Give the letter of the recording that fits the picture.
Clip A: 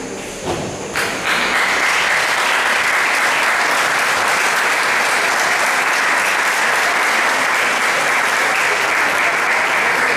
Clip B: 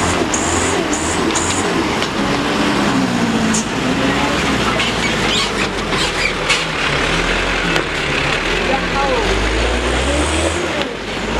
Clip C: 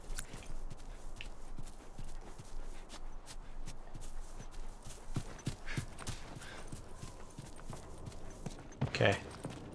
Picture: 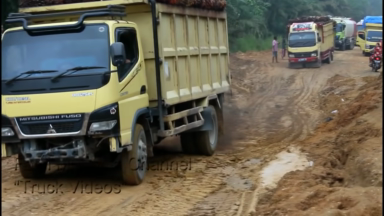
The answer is B